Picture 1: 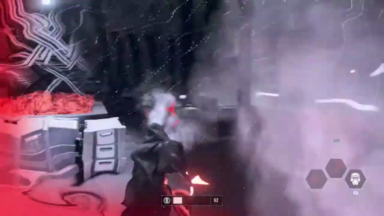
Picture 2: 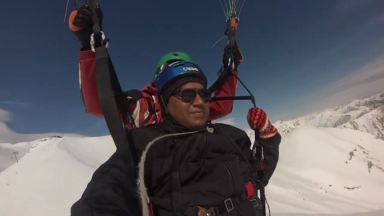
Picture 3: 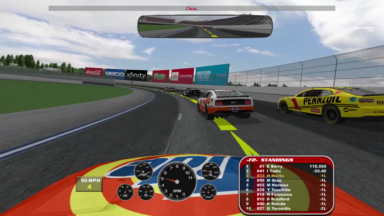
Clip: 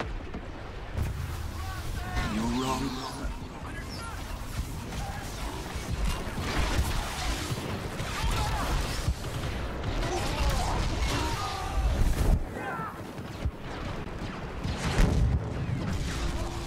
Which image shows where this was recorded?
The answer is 1